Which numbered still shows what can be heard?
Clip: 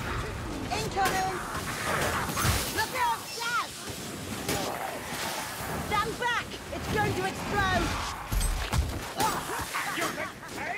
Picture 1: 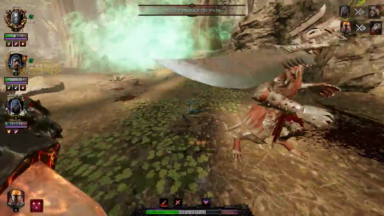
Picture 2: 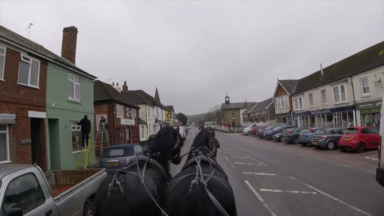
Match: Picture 1